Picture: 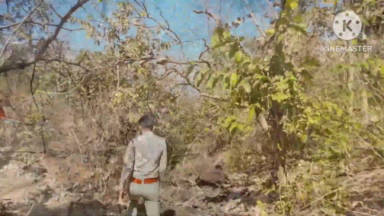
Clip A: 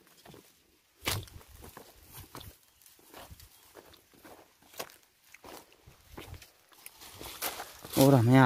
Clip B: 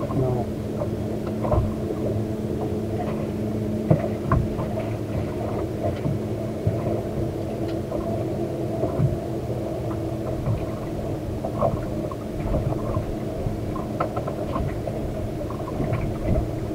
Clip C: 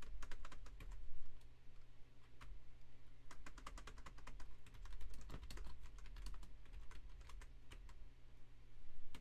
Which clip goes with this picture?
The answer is A